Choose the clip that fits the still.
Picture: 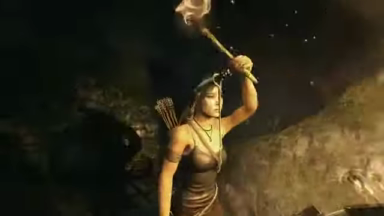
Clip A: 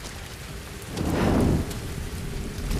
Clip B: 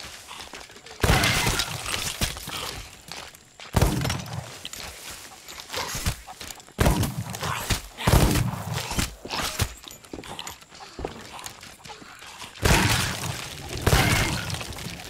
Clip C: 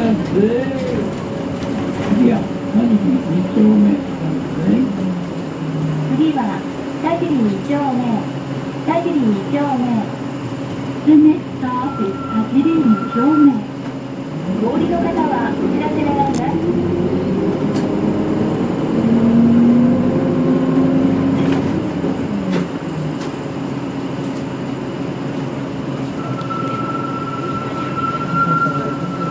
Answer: A